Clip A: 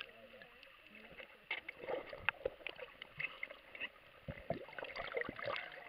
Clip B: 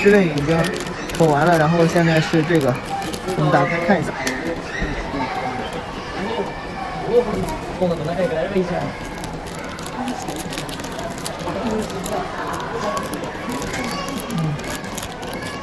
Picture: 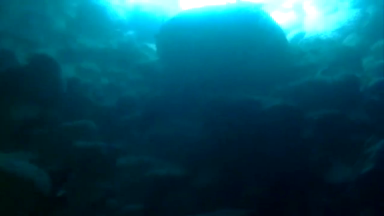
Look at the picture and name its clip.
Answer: A